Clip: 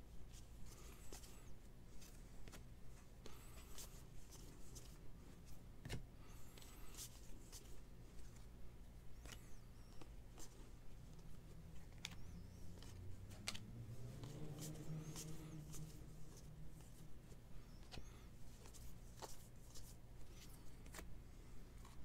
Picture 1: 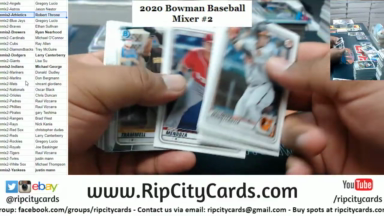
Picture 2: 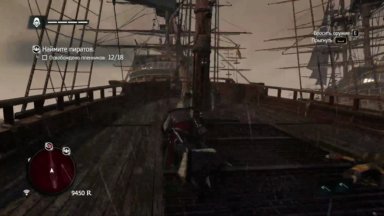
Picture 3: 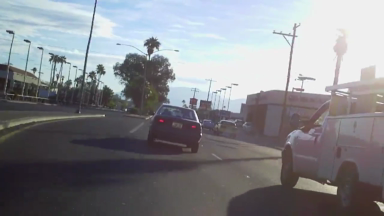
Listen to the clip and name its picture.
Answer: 1